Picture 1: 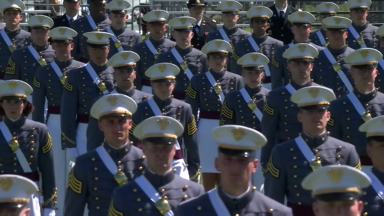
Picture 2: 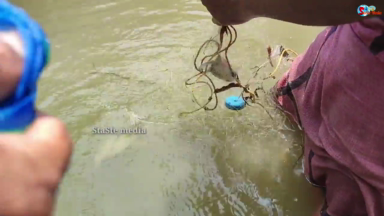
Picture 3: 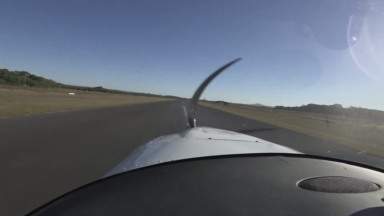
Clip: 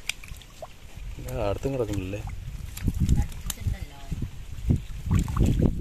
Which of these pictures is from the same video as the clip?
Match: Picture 2